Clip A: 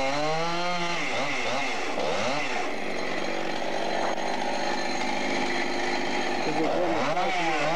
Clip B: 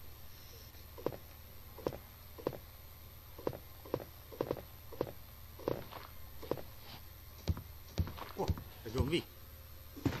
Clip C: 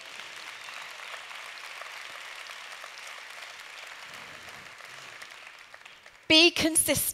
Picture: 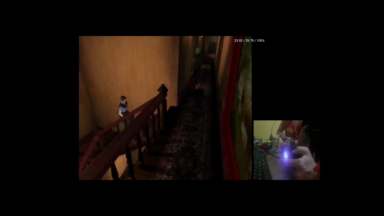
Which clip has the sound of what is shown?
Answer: B